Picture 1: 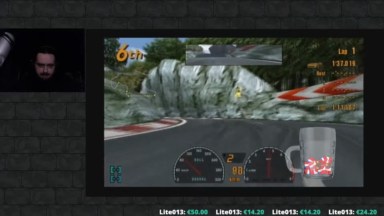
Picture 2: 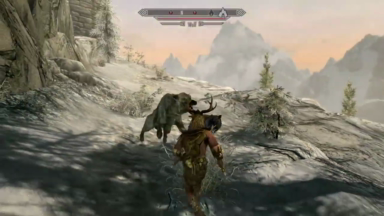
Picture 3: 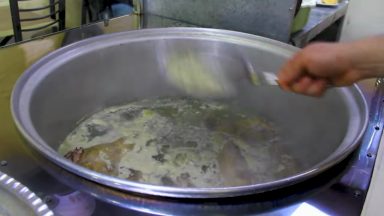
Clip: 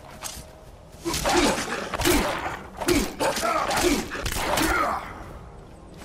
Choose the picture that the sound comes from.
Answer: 2